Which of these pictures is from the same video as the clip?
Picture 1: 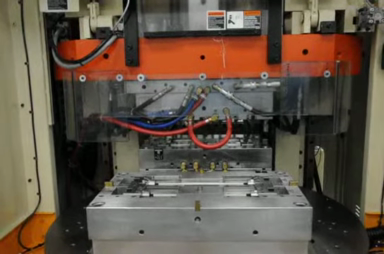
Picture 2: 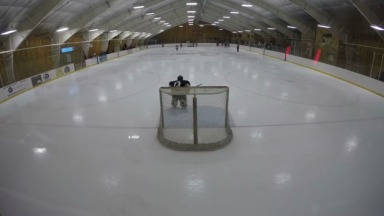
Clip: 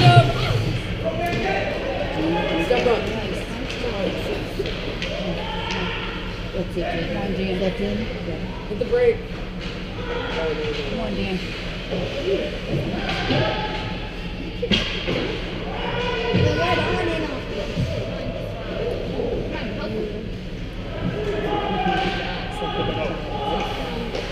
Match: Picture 2